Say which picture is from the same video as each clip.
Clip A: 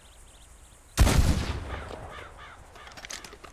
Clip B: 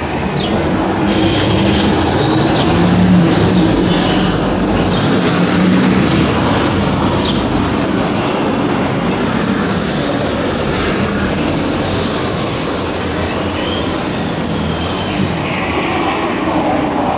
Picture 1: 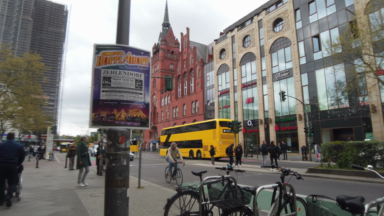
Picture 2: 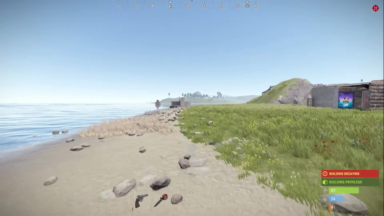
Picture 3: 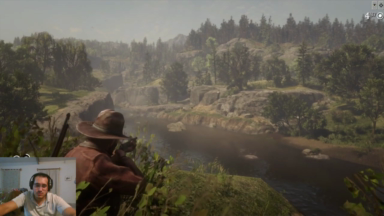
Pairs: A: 3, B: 1